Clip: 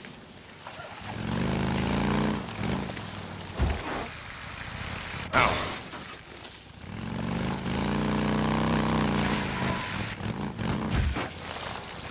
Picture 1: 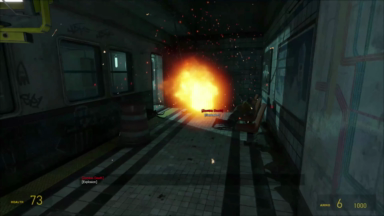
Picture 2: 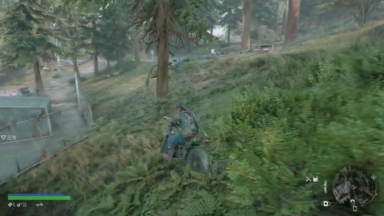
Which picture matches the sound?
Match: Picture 2